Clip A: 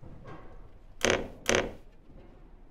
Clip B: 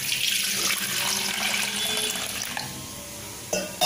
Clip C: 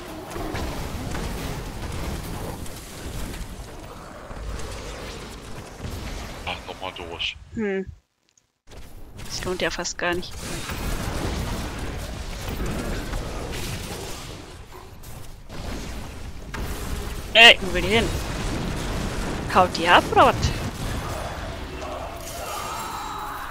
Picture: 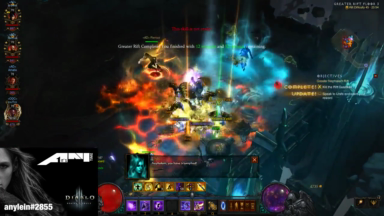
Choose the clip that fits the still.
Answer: C